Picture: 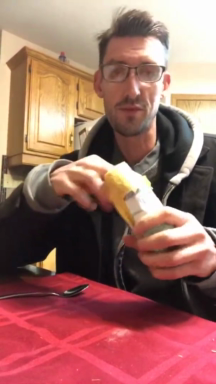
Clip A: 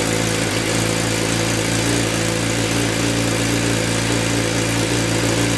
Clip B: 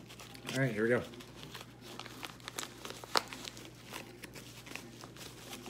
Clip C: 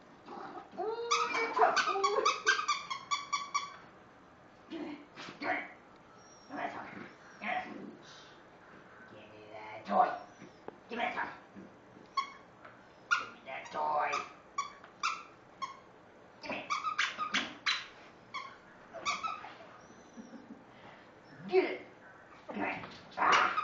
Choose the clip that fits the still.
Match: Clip B